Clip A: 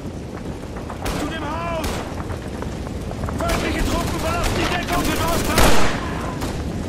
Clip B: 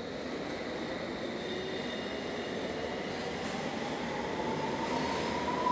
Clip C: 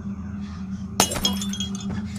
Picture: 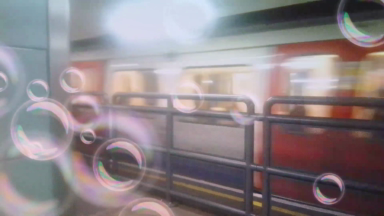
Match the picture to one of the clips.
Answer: B